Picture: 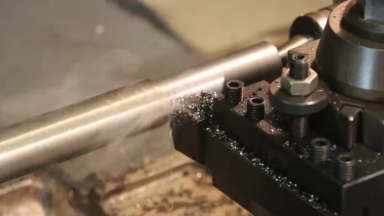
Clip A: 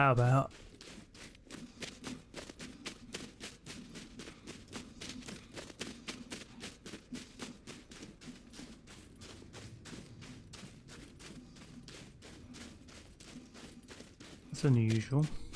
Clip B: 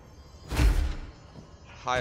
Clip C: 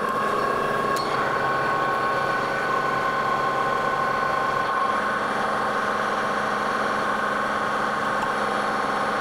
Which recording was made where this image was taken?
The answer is C